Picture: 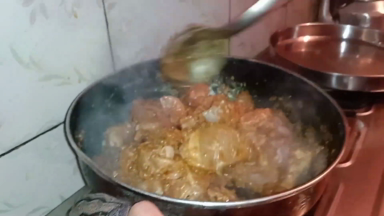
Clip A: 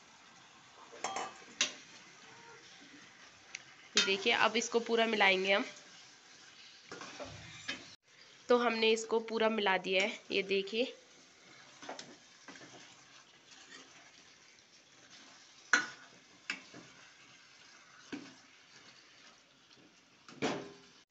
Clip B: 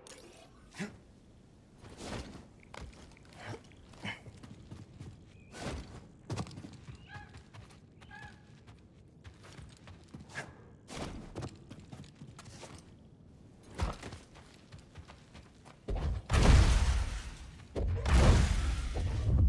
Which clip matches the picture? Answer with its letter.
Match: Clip A